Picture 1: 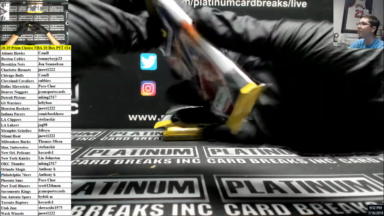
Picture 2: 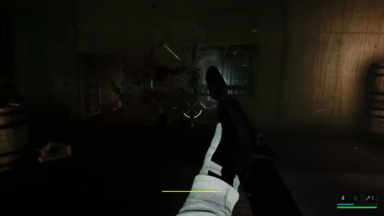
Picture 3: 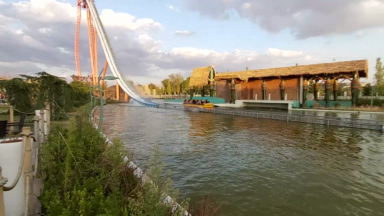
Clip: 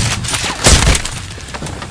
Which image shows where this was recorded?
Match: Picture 2